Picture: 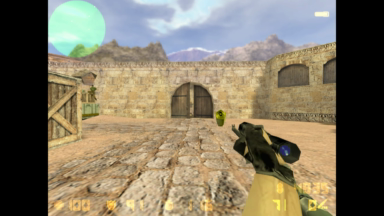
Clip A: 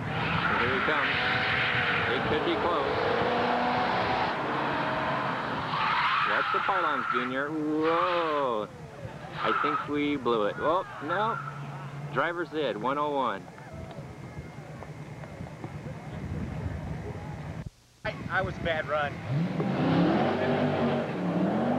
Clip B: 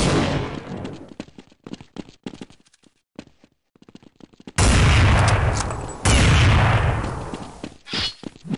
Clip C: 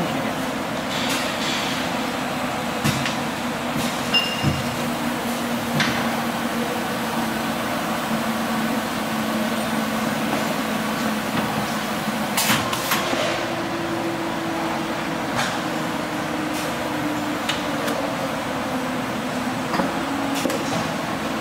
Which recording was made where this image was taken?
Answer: B